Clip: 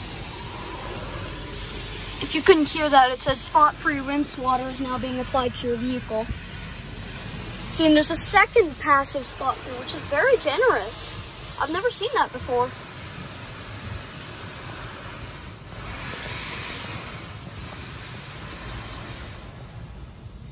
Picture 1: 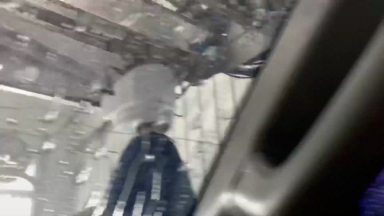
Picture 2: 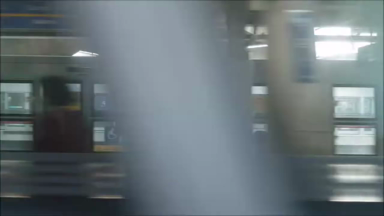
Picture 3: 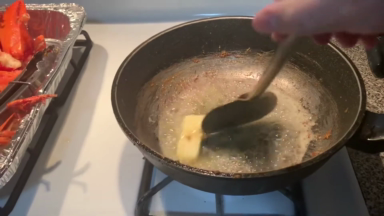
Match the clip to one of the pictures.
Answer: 1